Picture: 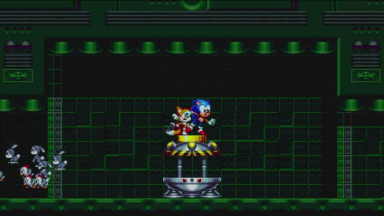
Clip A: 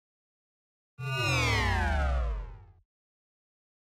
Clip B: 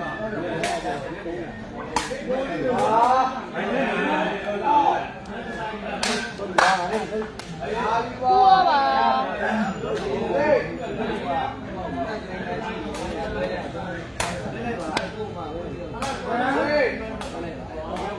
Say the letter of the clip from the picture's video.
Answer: A